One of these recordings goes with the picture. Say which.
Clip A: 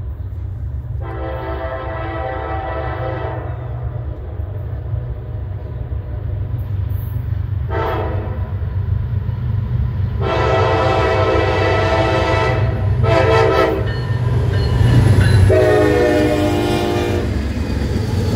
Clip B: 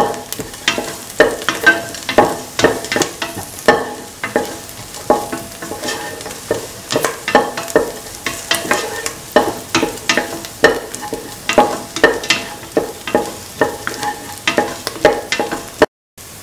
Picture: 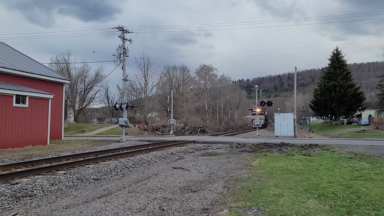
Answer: A